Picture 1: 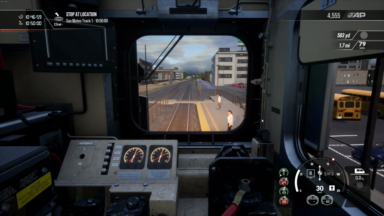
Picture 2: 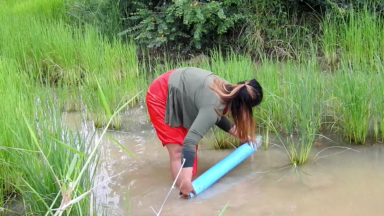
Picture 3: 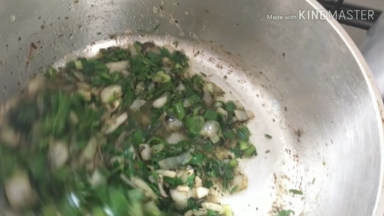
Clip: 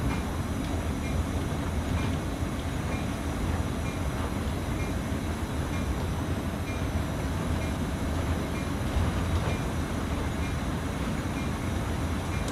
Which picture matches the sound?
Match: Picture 1